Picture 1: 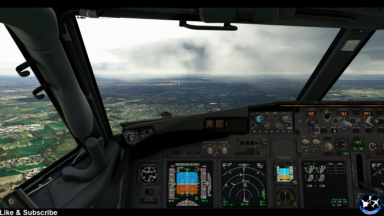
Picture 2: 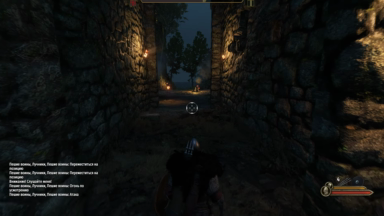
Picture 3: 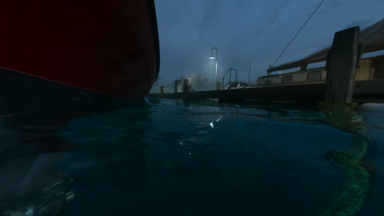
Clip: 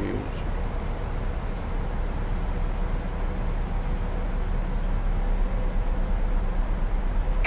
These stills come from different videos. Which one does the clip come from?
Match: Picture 1